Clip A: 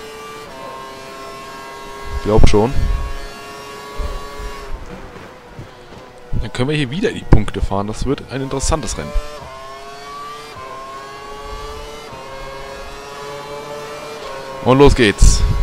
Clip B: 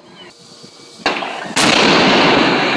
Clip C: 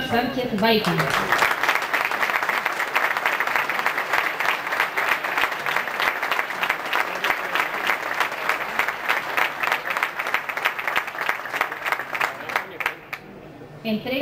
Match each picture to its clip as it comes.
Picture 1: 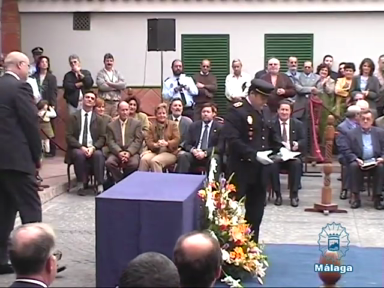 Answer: C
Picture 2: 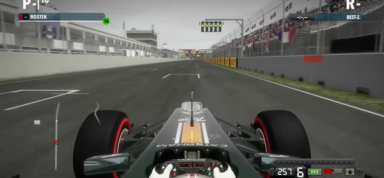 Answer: A